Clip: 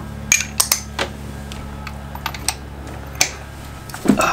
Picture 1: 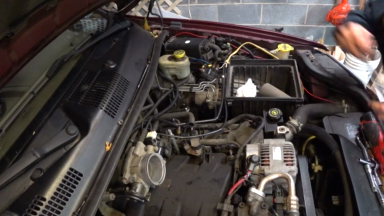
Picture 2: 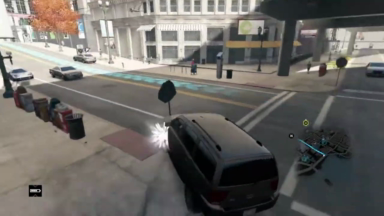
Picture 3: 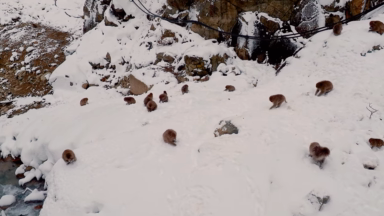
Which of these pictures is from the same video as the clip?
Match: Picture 1